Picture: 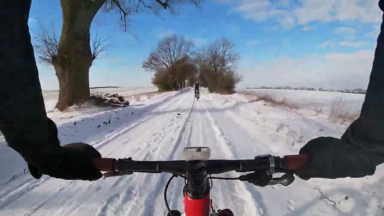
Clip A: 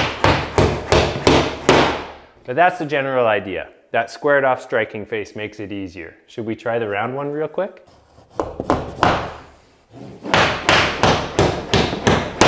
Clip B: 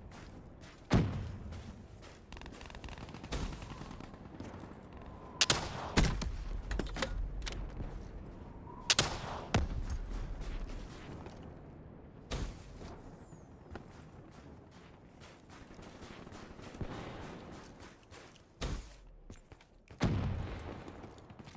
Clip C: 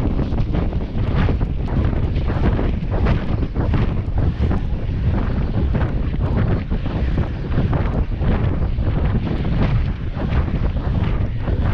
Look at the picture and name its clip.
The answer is C